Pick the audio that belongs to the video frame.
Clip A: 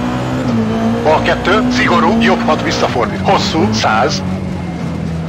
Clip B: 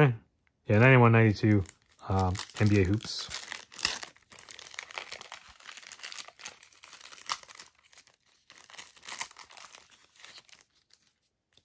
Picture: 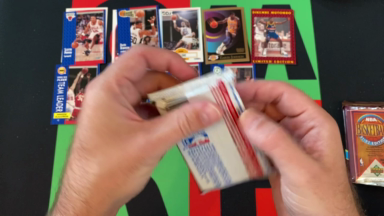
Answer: B